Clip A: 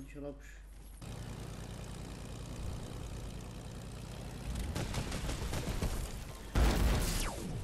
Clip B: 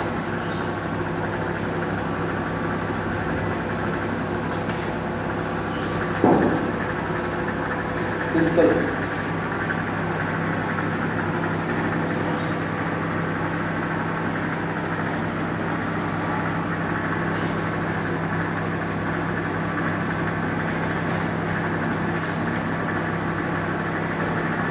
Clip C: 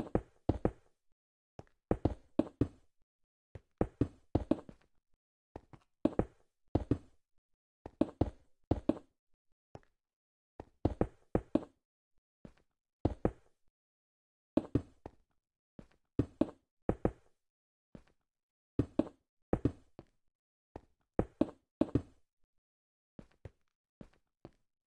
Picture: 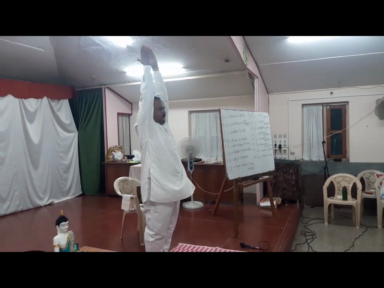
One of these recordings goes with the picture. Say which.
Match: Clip B